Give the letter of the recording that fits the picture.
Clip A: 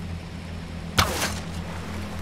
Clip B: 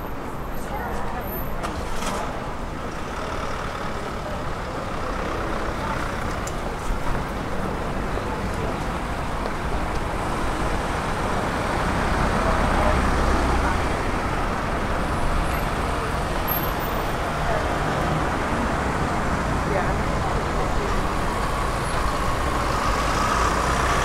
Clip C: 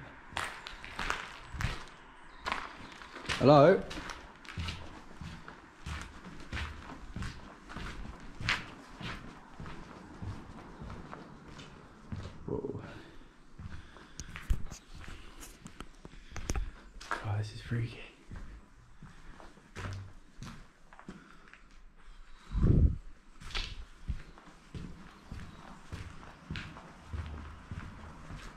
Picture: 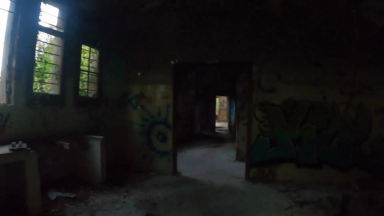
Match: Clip C